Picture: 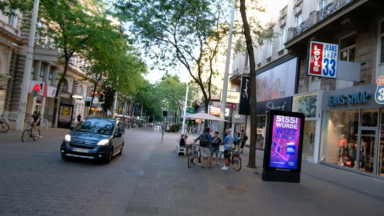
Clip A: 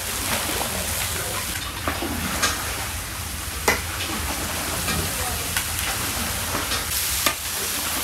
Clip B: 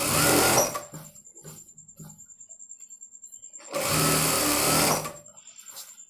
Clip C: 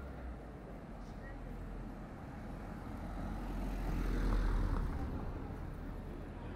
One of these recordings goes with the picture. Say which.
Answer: C